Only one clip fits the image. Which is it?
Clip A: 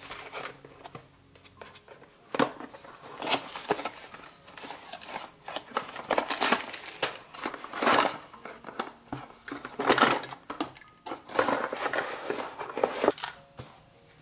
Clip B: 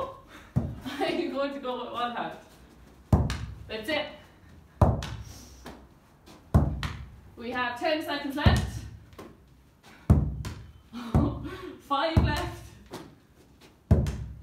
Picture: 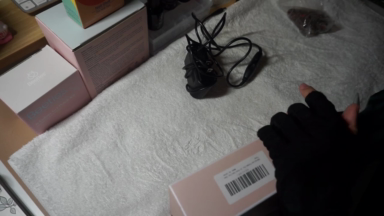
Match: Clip A